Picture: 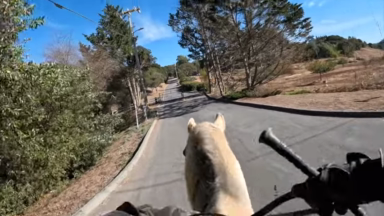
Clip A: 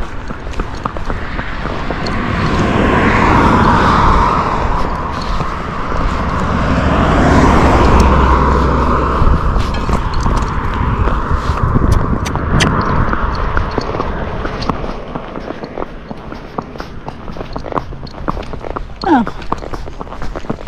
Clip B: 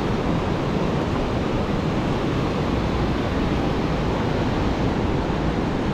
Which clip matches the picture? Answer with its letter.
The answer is A